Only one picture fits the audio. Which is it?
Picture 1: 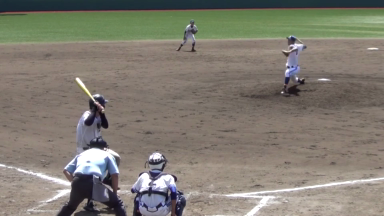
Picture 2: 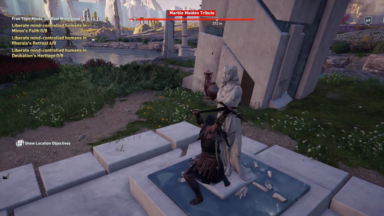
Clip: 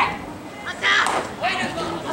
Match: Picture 1